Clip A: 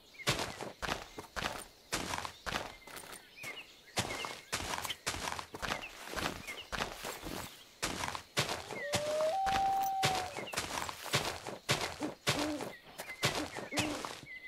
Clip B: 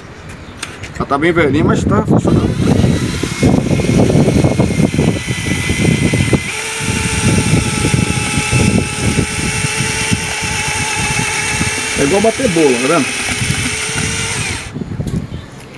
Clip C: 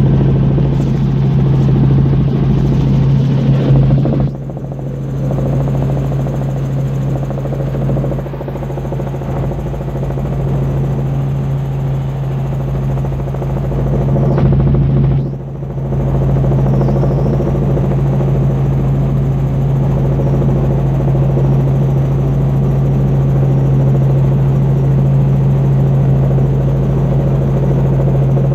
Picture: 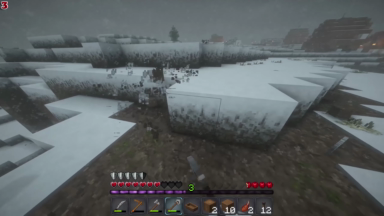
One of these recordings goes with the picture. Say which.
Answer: A